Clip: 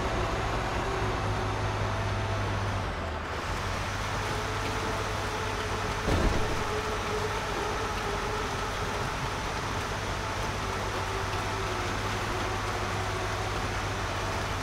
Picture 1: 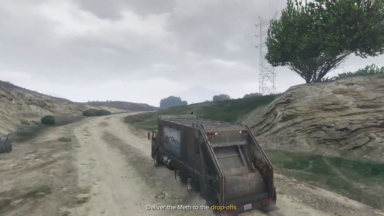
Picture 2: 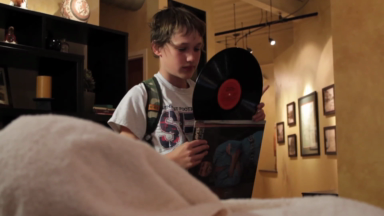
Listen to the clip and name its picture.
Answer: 1